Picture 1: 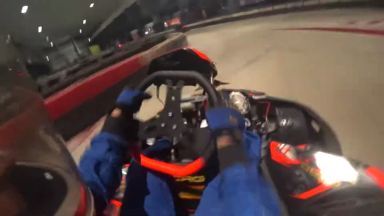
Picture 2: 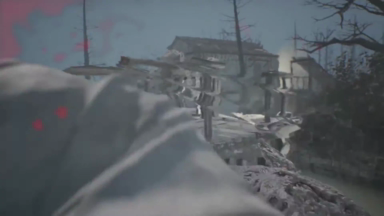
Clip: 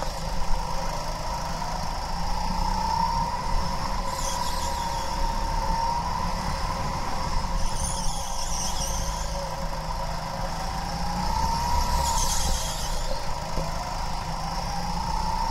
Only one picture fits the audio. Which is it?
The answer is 1